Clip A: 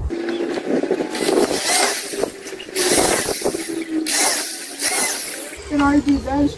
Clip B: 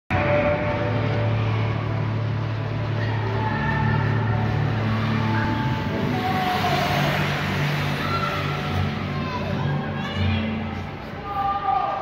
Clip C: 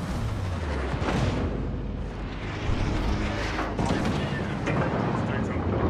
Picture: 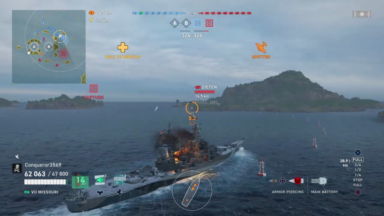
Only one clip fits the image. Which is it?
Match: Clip C